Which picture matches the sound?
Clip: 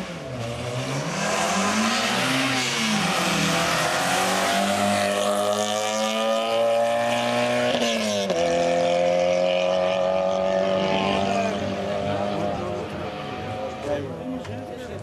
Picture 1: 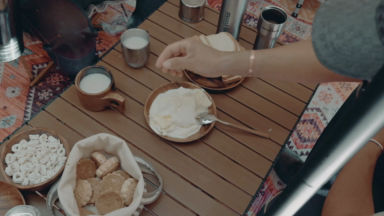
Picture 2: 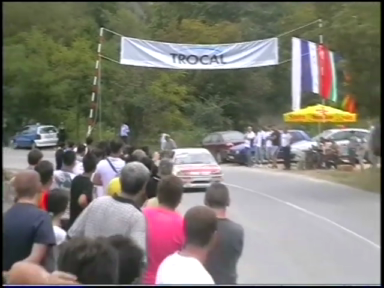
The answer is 2